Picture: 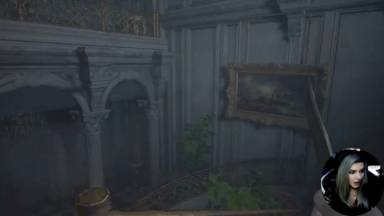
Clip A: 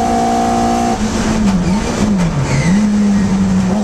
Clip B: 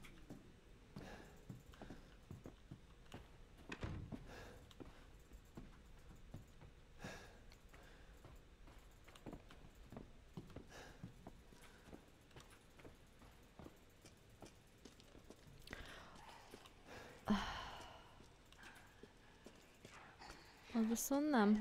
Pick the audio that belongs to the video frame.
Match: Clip B